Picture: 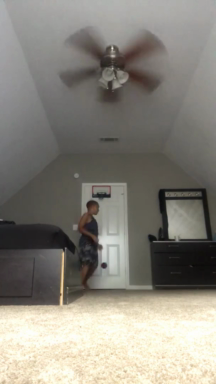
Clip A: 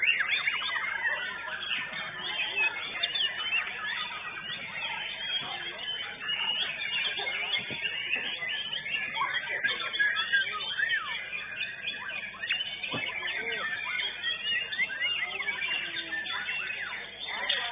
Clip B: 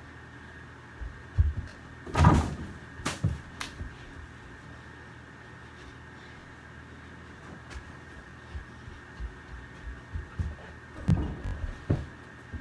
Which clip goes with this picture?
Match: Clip B